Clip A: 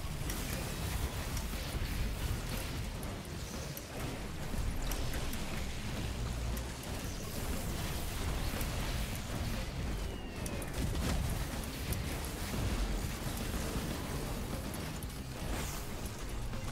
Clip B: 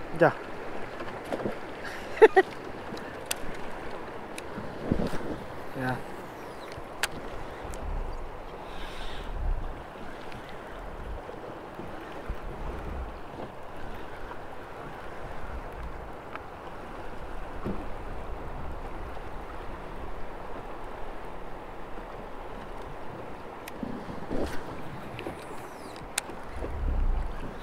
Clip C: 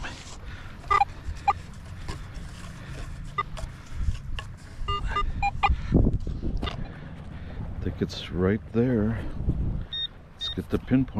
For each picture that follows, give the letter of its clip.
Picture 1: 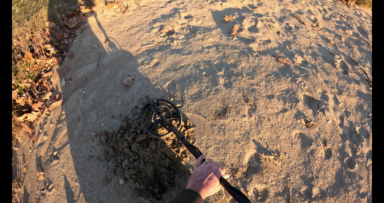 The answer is C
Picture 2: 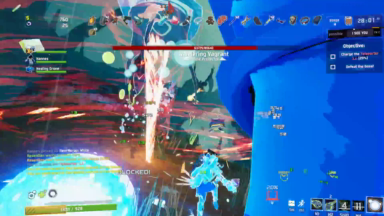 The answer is A